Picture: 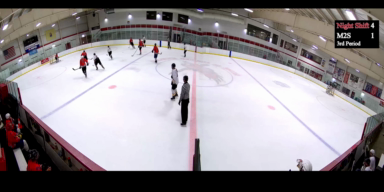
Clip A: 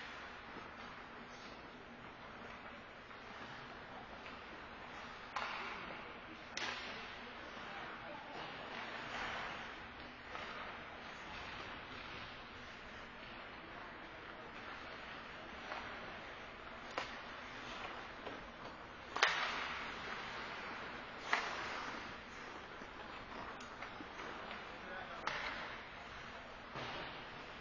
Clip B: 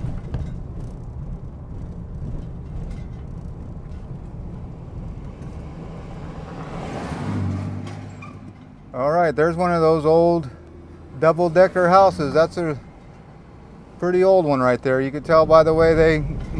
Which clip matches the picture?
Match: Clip A